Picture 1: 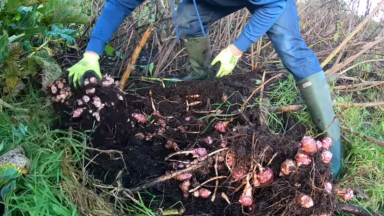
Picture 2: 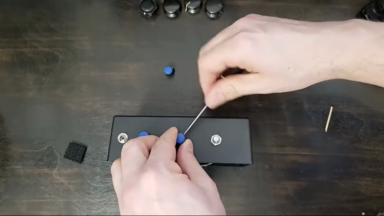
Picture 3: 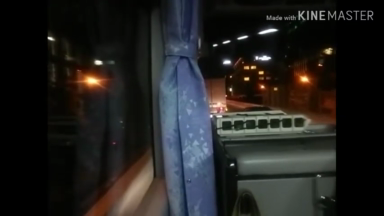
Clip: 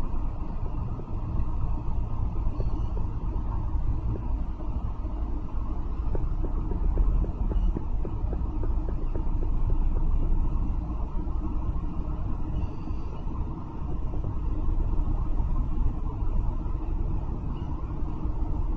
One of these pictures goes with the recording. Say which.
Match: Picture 3